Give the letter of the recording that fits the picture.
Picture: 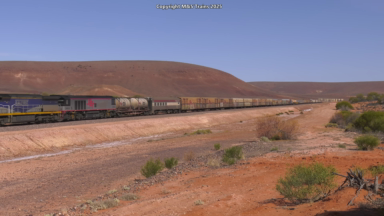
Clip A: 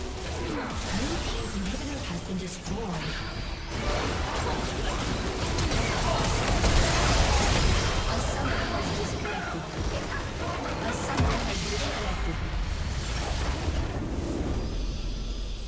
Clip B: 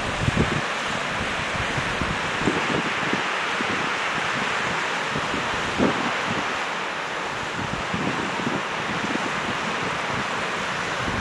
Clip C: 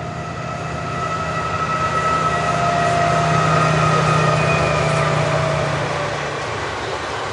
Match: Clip C